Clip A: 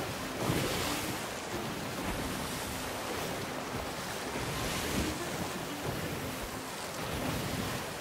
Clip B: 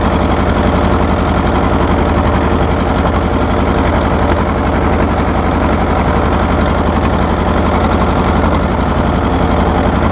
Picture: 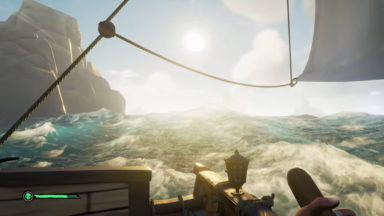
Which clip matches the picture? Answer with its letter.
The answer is A